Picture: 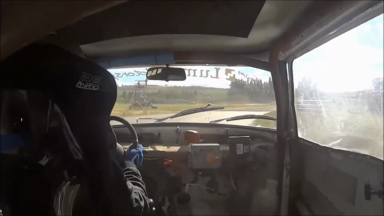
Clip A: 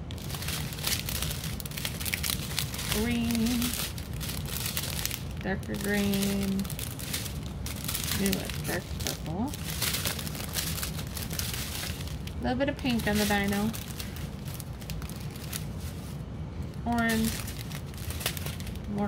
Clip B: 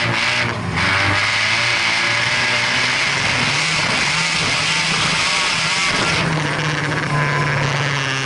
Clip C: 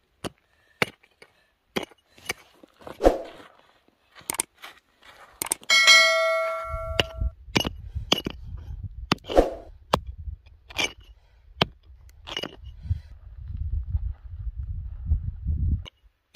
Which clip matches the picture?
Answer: B